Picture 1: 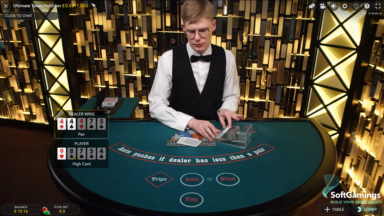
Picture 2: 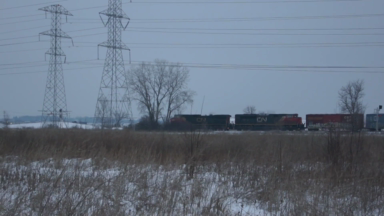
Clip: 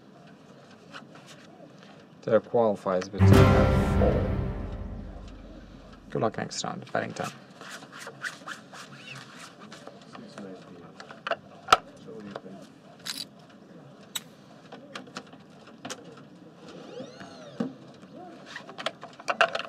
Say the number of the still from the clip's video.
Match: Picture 1